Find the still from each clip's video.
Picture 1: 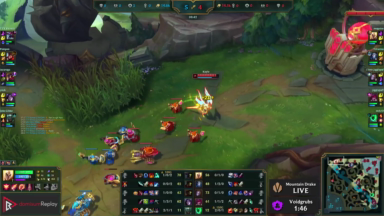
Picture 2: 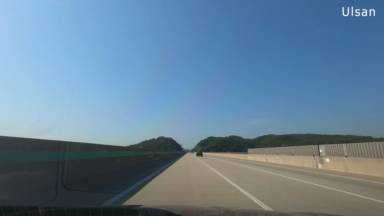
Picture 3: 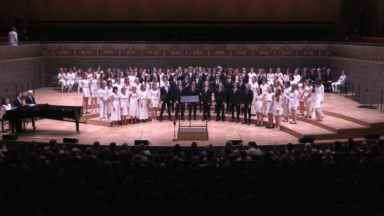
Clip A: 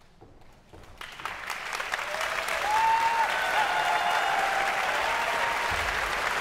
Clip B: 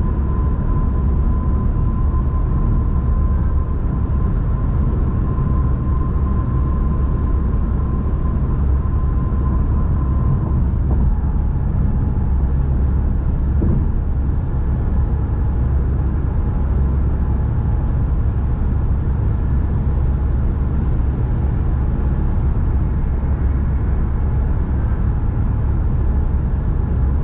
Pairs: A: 3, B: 2